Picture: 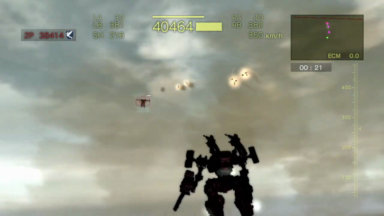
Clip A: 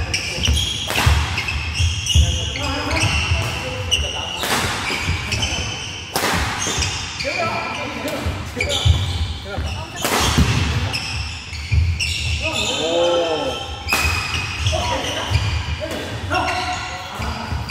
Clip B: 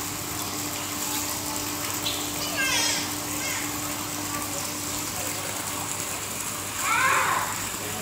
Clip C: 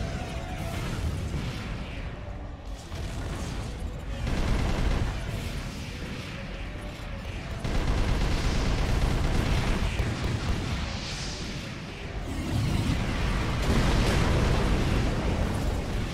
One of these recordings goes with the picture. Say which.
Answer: C